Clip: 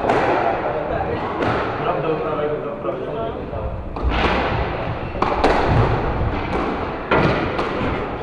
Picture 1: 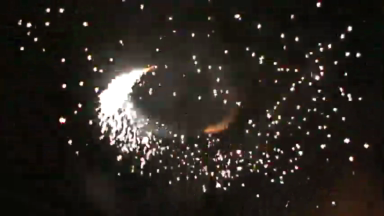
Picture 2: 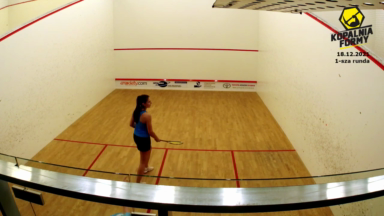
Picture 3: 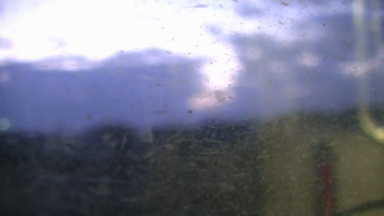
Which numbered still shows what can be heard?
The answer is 2